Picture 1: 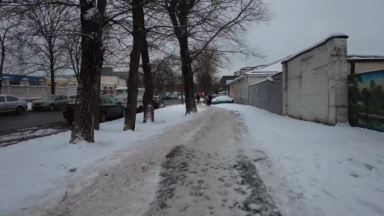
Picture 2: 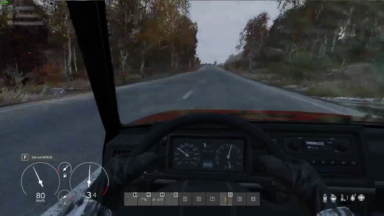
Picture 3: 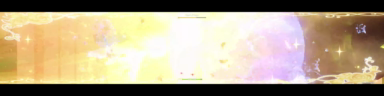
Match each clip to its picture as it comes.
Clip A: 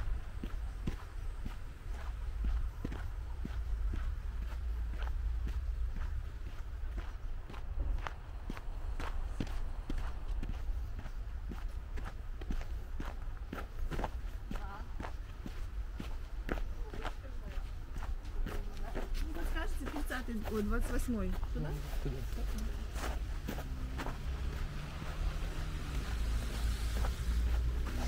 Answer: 1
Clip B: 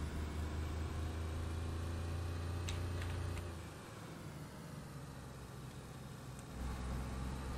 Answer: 2